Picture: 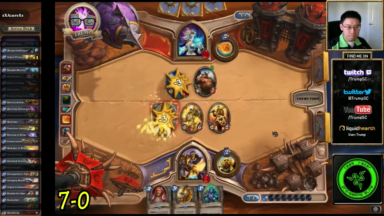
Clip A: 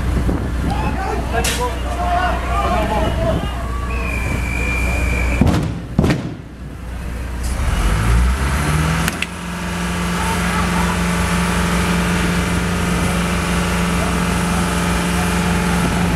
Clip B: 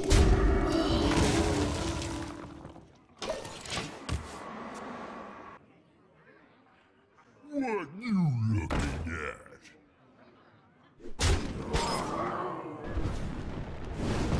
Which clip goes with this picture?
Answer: B